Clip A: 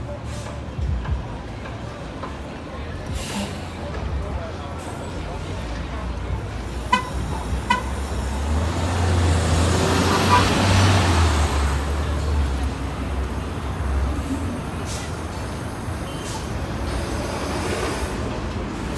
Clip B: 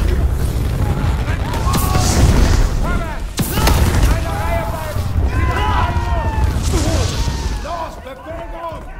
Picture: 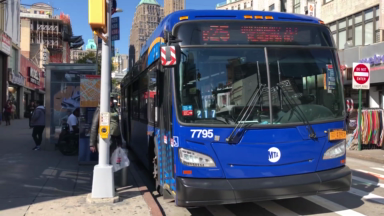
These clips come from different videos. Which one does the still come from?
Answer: A